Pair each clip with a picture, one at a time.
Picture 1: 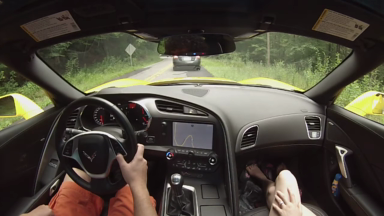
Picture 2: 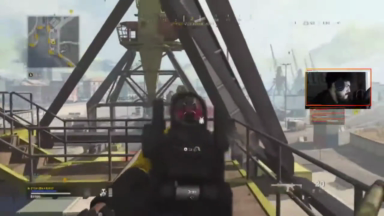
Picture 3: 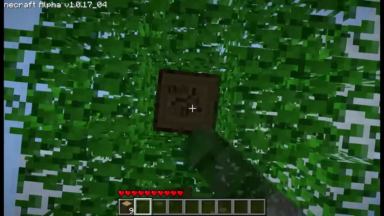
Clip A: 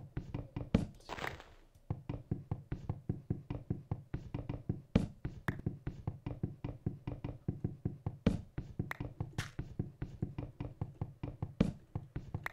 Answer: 3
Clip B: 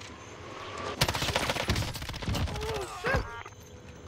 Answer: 2